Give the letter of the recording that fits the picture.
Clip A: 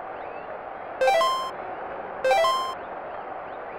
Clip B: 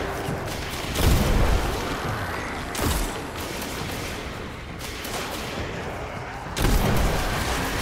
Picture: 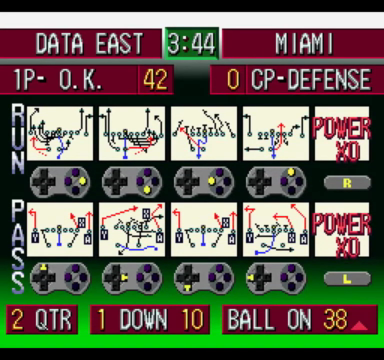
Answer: A